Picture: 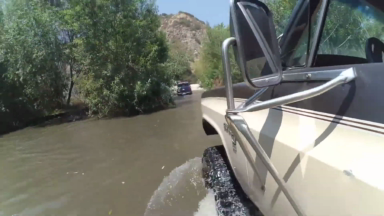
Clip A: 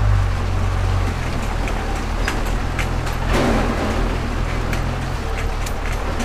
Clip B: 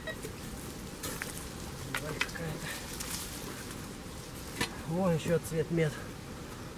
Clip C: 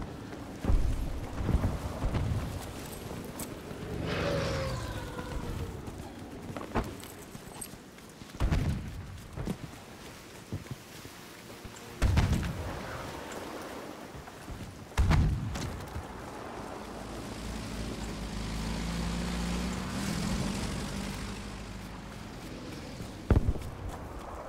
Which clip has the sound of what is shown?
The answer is A